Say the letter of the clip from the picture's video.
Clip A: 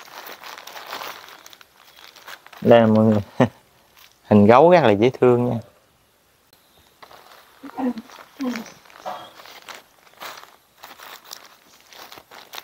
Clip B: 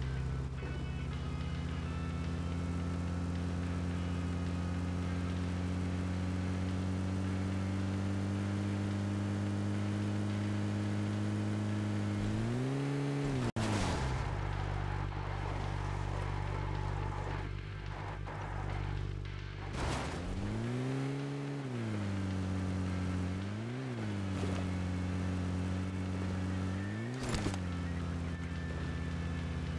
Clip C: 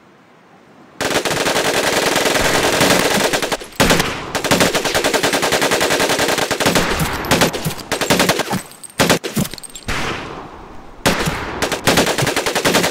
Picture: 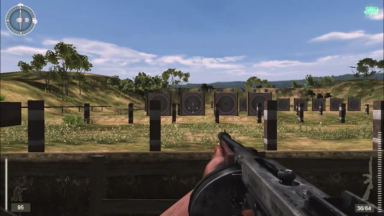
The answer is C